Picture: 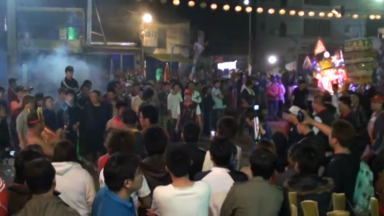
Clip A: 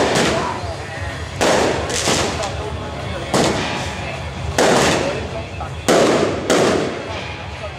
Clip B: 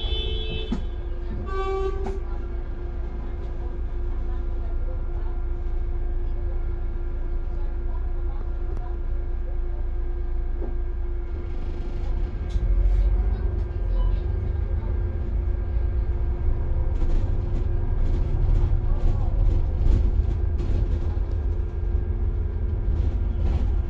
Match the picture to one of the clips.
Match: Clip A